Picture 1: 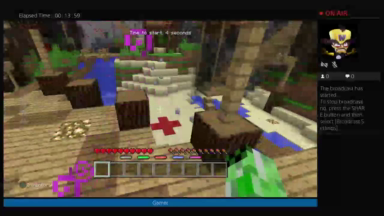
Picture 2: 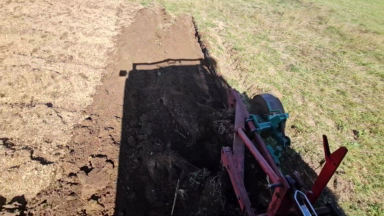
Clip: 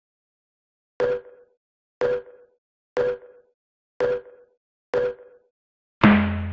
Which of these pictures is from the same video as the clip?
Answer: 1